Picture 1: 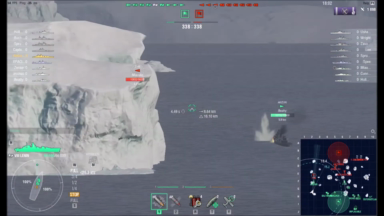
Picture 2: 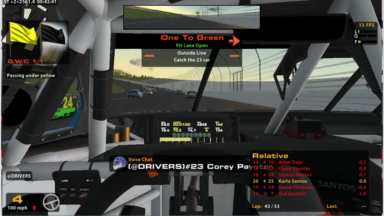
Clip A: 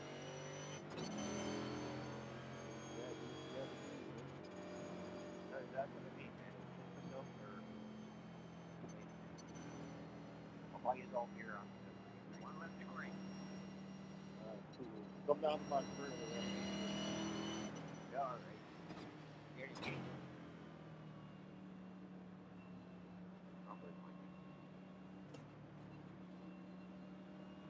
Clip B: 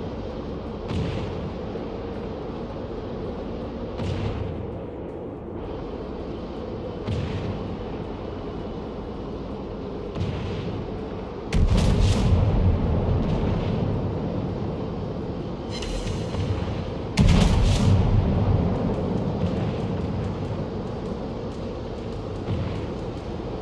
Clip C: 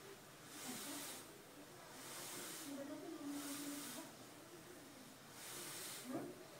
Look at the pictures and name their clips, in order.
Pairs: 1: B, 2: A